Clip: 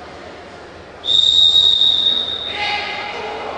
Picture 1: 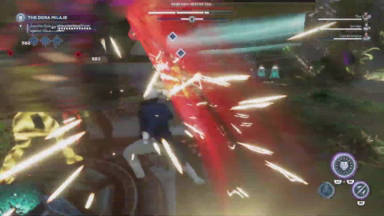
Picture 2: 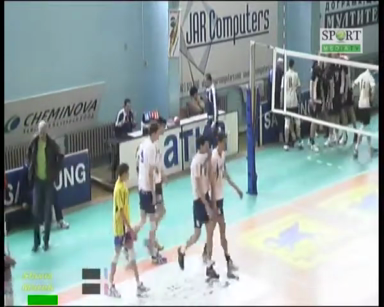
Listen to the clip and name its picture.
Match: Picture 2